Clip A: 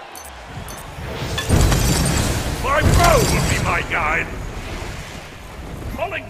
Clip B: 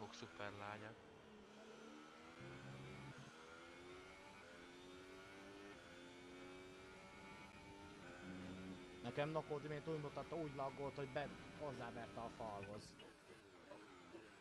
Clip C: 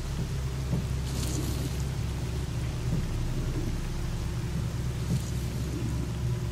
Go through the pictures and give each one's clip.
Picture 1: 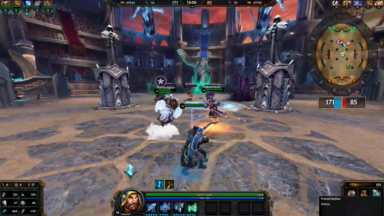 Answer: A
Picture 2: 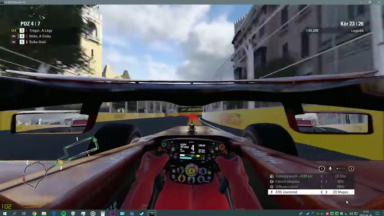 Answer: B